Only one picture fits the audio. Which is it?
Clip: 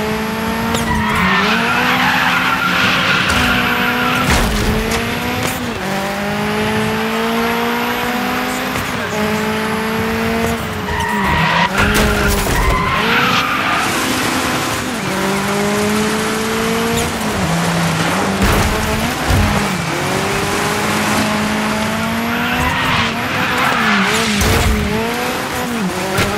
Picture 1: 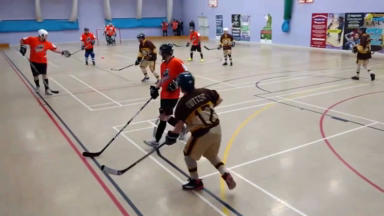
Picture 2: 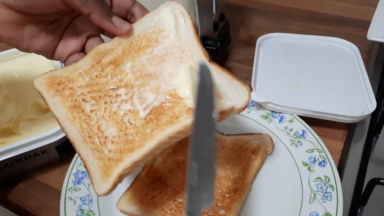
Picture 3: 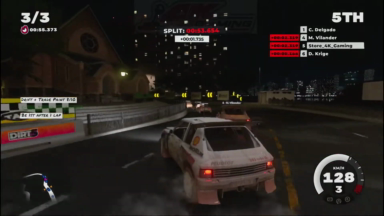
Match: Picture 3